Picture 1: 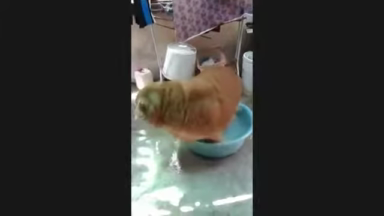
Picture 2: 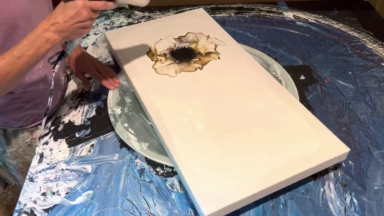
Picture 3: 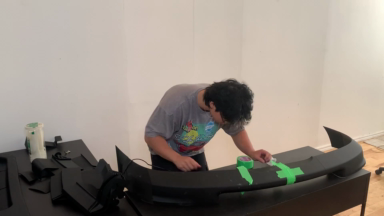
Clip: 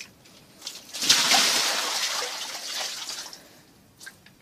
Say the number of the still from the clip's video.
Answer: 1